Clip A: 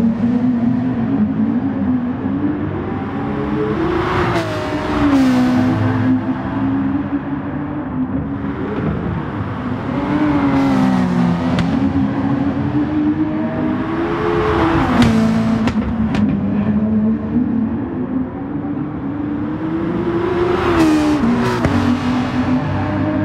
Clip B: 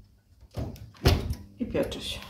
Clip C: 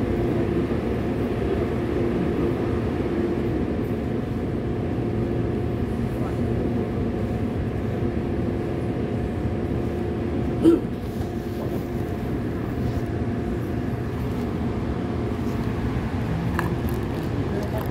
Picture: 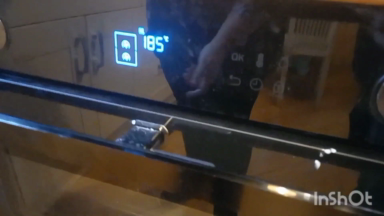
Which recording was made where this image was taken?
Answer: B